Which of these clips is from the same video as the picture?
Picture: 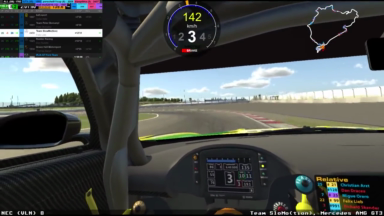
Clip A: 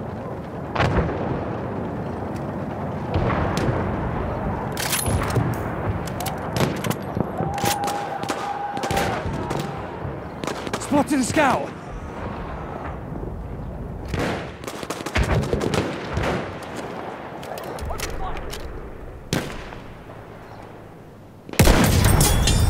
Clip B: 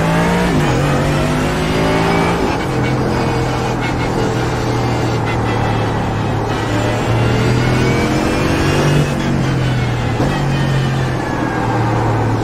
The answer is B